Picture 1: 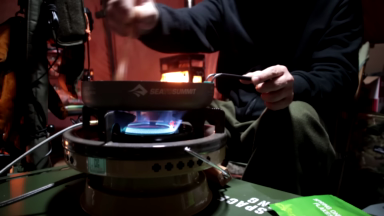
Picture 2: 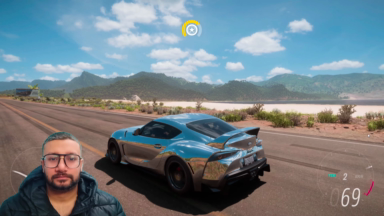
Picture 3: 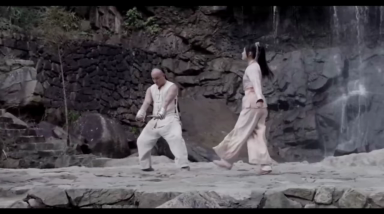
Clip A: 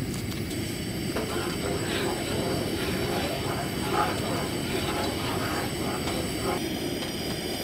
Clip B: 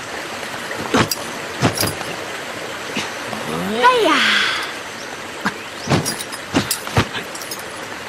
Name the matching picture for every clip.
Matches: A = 1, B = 3